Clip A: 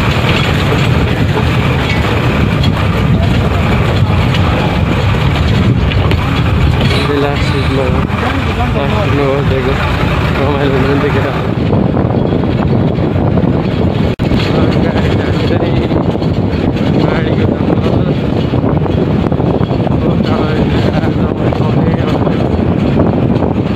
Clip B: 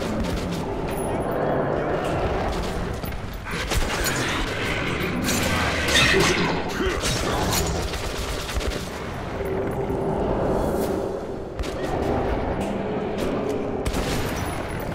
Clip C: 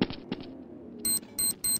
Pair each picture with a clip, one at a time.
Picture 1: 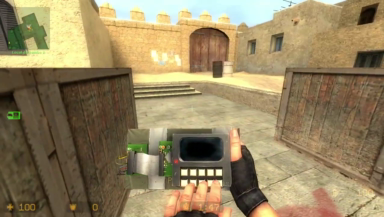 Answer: C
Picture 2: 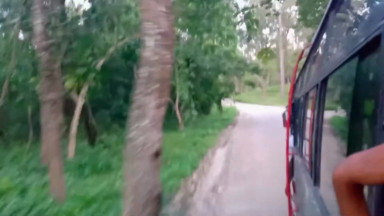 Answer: A